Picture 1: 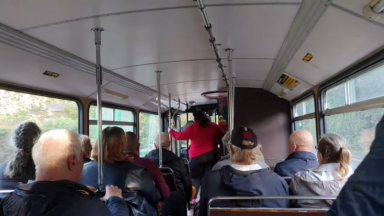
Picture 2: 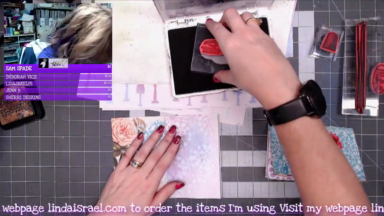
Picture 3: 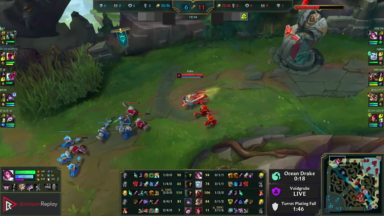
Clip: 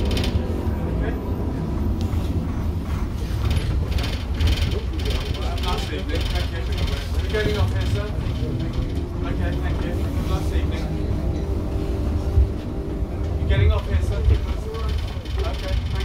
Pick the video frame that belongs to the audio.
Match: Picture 1